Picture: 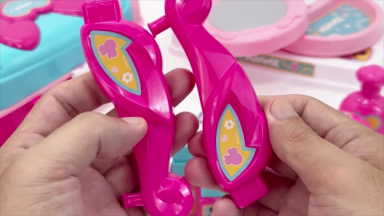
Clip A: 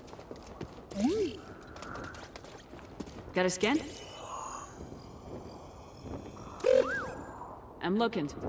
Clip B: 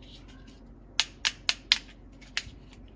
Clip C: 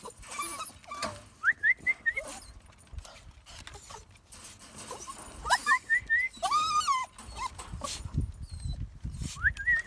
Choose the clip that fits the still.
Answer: B